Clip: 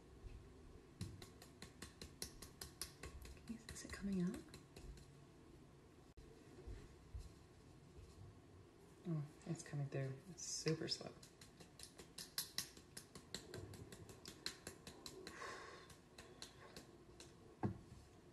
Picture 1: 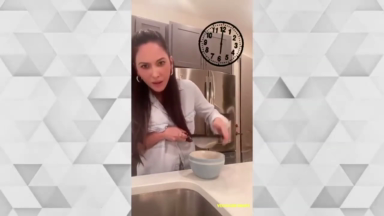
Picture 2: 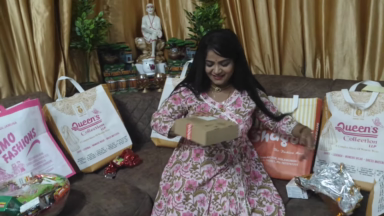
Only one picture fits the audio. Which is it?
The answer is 1